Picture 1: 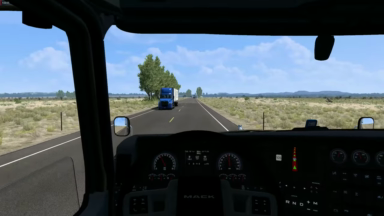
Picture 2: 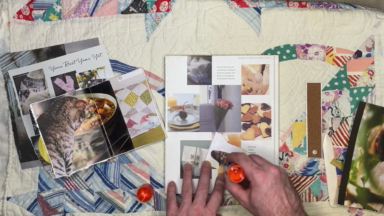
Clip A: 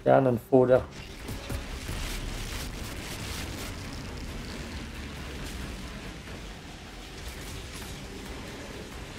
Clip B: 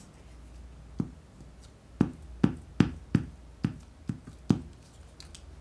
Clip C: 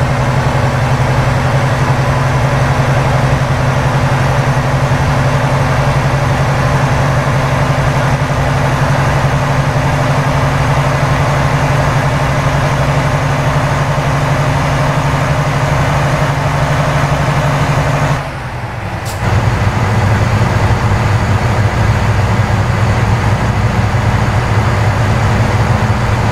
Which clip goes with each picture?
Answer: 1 C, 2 B